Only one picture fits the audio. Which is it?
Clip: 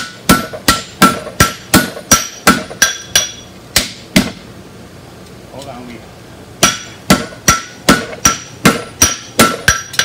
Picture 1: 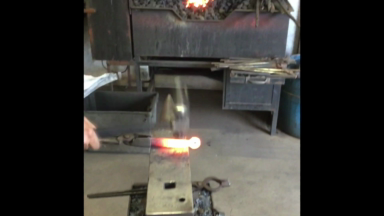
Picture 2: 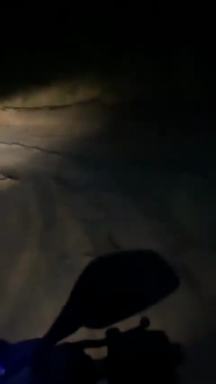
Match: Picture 1